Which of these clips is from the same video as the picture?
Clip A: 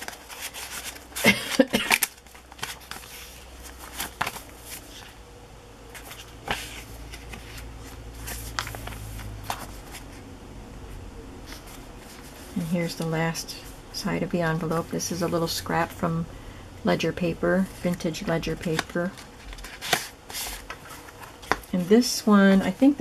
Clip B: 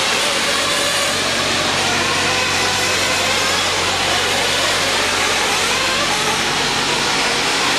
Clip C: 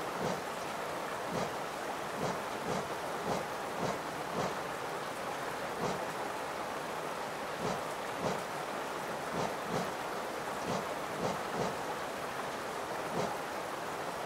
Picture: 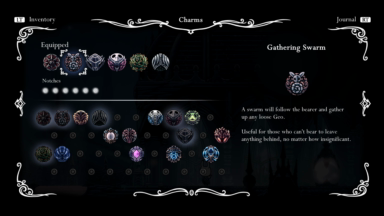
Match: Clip C